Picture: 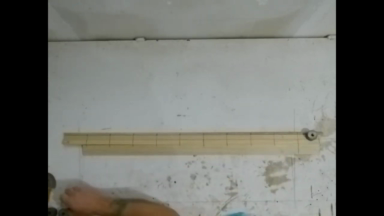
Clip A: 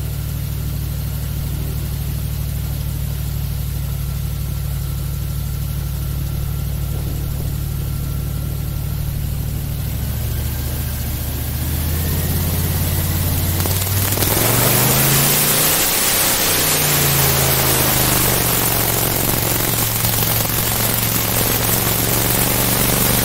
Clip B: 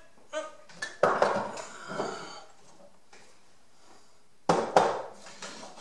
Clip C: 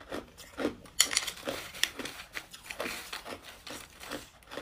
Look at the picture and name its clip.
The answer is B